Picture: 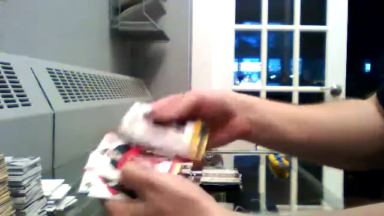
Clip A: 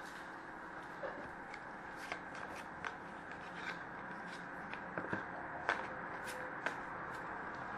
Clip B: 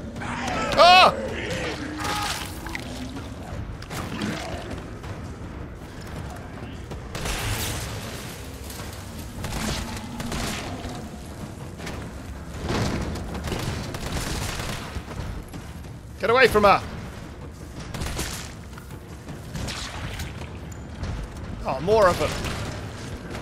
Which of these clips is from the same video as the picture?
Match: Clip A